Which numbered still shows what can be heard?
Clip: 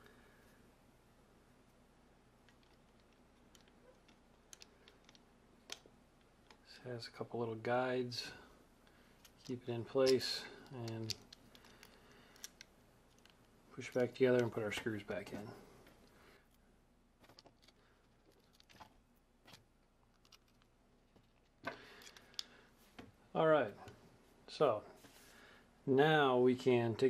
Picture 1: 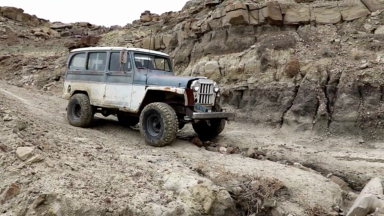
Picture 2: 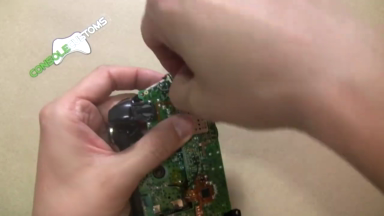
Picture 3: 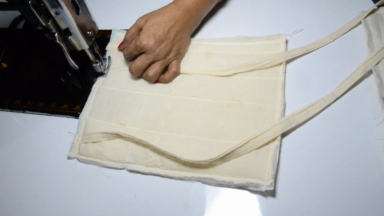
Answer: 2